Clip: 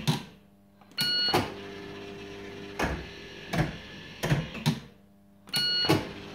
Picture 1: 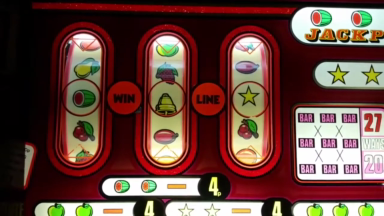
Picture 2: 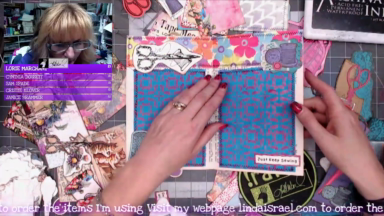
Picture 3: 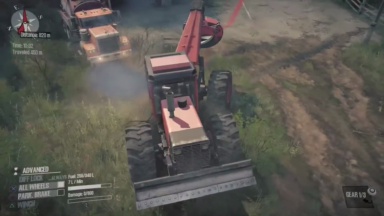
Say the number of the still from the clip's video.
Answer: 1